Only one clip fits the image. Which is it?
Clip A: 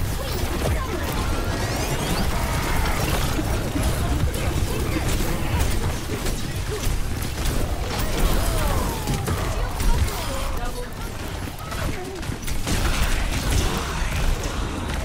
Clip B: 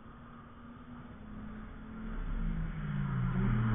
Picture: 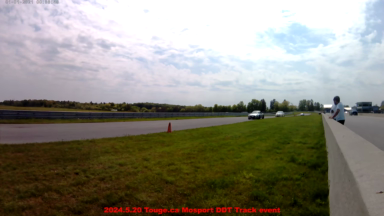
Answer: B